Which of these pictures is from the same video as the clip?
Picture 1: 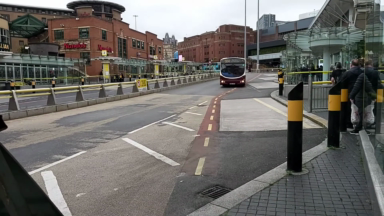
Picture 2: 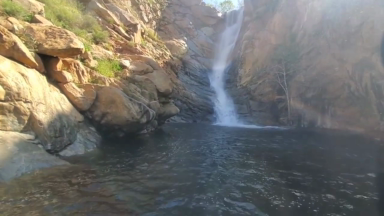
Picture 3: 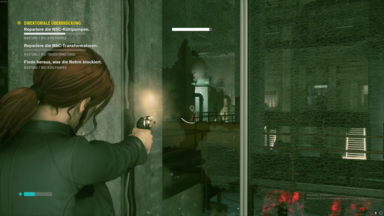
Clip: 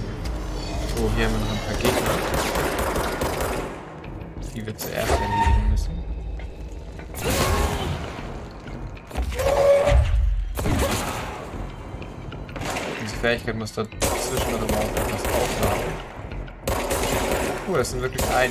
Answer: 3